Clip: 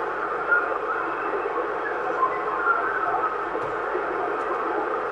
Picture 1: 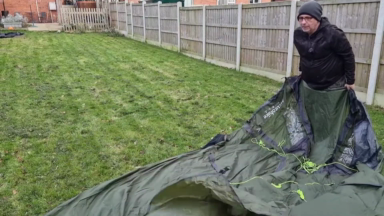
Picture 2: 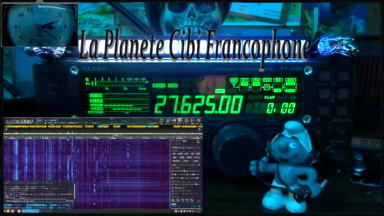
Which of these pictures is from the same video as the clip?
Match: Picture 2